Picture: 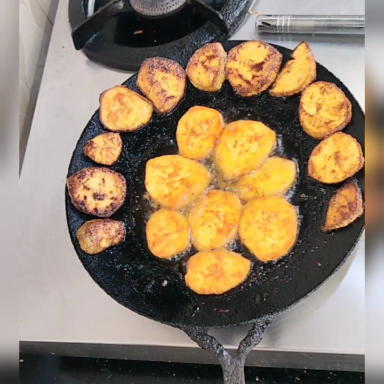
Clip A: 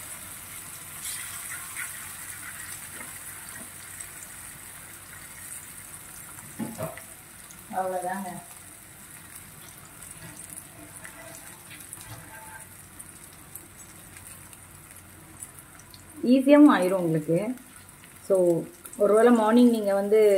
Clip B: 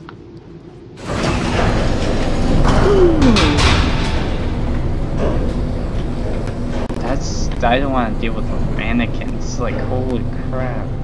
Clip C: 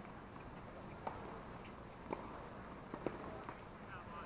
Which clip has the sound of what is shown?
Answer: A